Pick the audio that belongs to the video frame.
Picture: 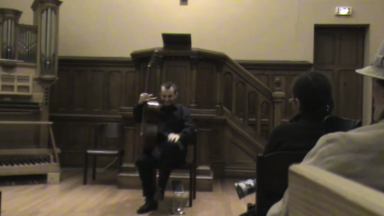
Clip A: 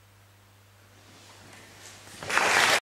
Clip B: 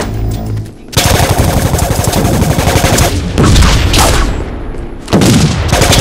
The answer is A